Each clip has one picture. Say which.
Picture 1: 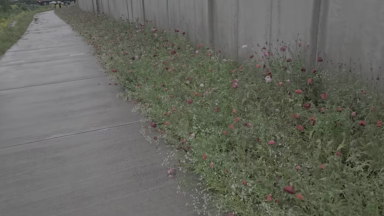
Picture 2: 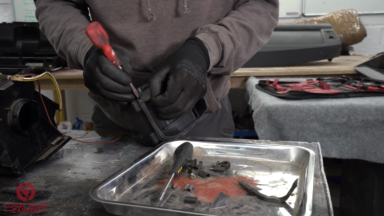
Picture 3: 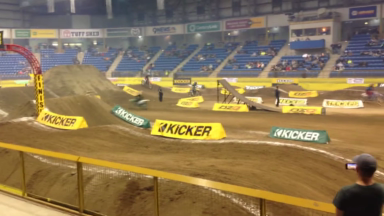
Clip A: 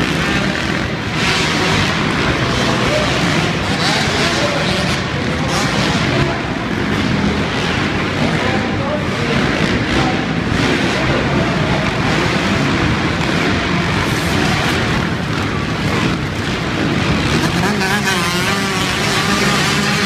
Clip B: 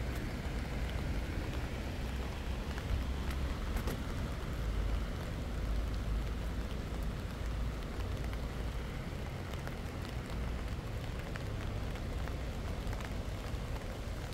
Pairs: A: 3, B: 1